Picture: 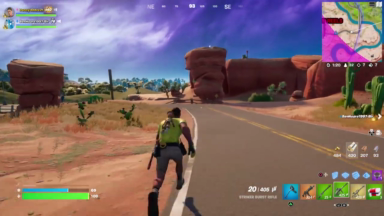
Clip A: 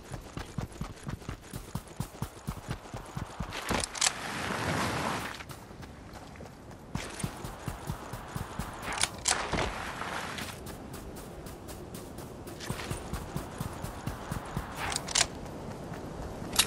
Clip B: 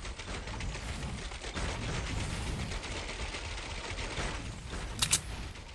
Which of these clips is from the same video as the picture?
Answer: A